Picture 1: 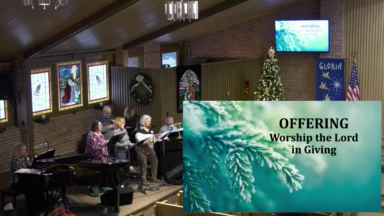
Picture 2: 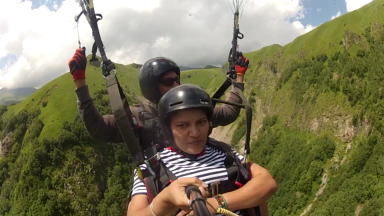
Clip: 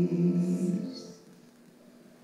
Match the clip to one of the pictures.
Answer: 1